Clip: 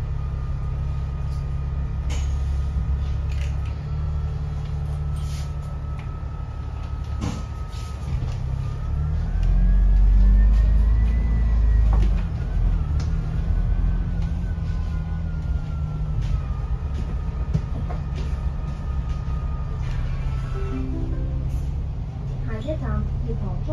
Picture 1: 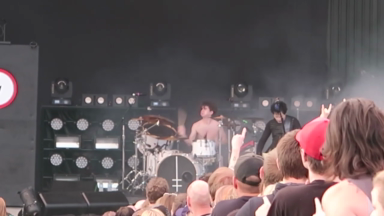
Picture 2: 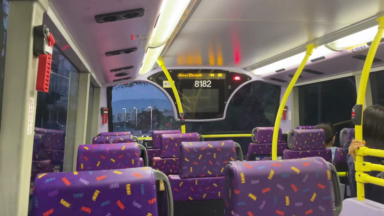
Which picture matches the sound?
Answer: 2